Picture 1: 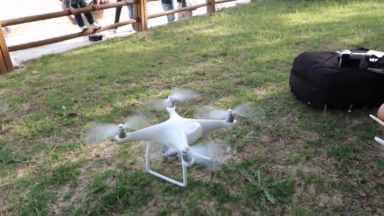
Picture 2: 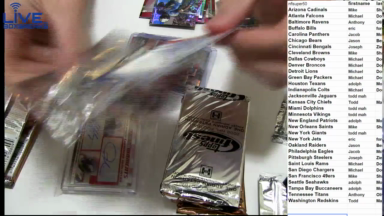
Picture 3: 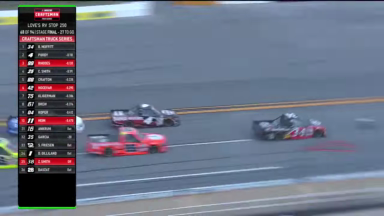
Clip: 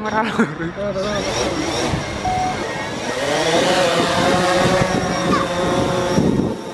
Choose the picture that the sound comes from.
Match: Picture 1